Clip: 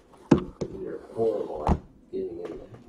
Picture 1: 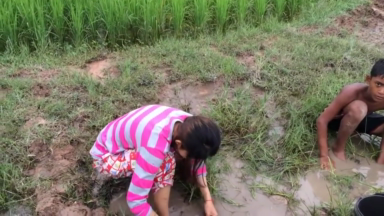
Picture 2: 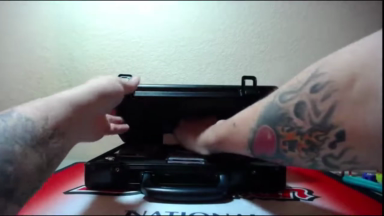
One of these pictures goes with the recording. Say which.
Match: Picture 2